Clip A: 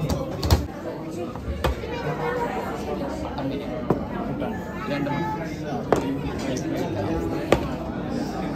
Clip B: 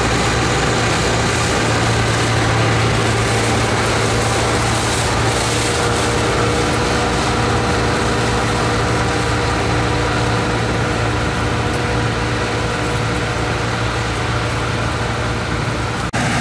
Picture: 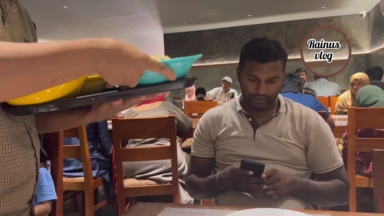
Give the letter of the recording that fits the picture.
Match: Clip A